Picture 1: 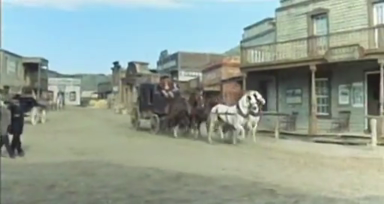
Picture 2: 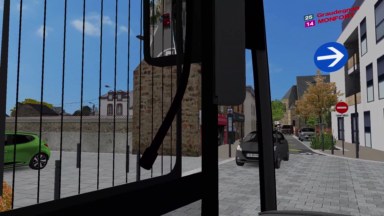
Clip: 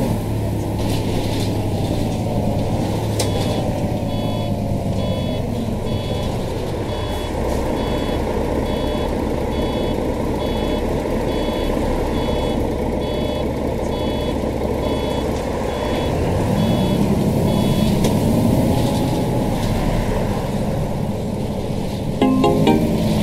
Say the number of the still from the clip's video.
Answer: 2